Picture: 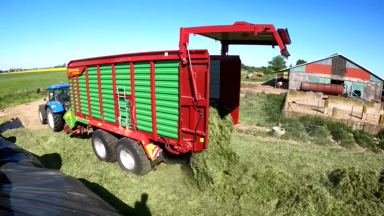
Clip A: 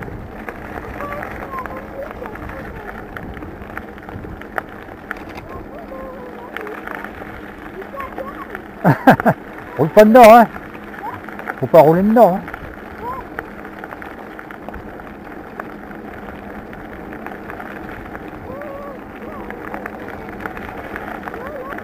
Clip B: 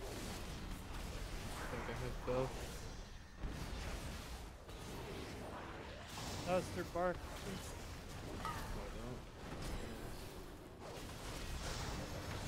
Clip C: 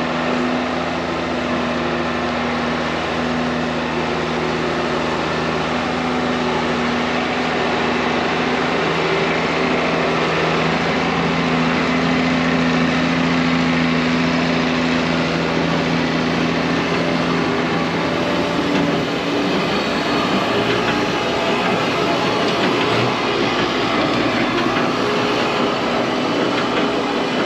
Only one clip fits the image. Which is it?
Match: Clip C